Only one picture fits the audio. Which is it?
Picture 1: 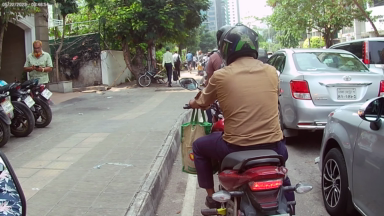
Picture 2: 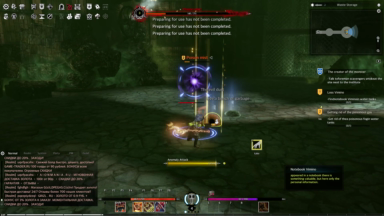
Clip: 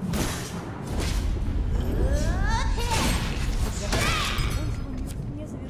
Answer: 2